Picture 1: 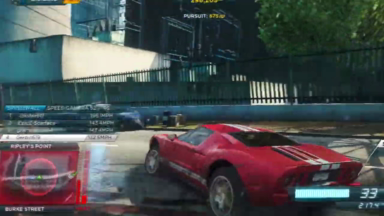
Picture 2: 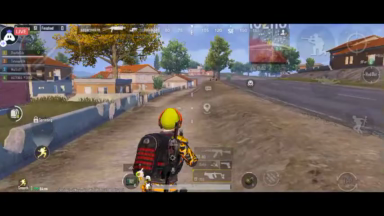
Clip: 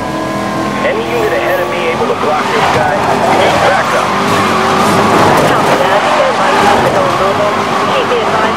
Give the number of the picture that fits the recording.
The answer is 1